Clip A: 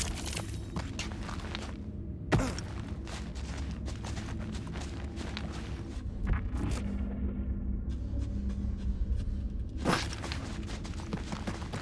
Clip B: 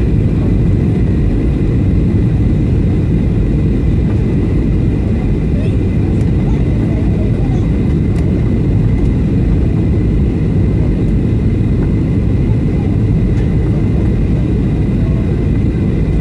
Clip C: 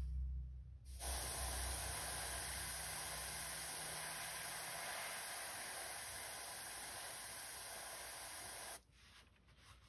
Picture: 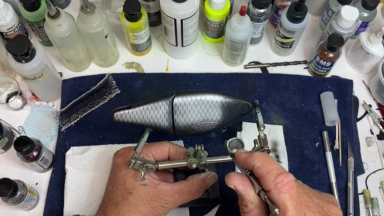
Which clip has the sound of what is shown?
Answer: C